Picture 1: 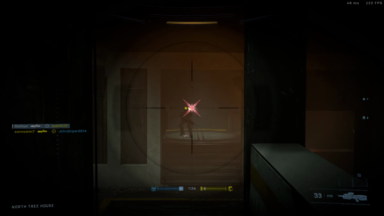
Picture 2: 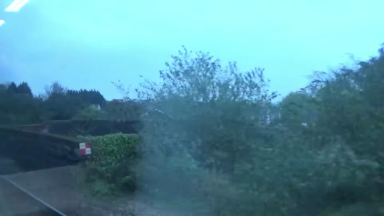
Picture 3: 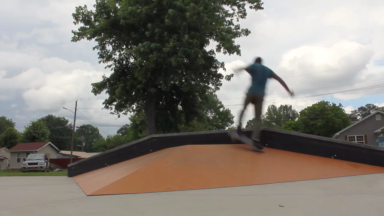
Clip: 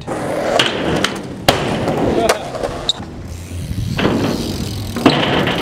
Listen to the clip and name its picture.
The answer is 3